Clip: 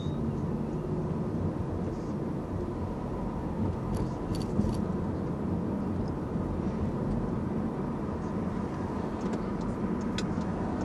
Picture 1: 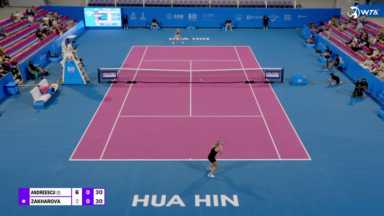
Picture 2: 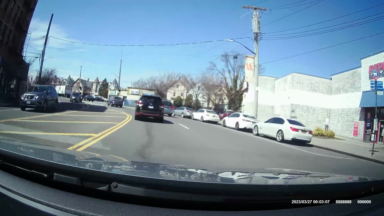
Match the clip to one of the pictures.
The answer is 2